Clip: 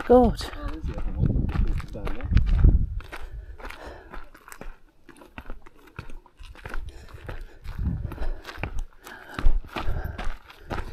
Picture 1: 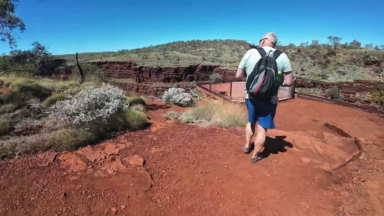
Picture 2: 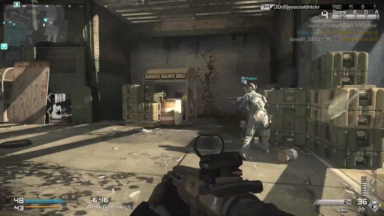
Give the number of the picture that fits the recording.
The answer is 1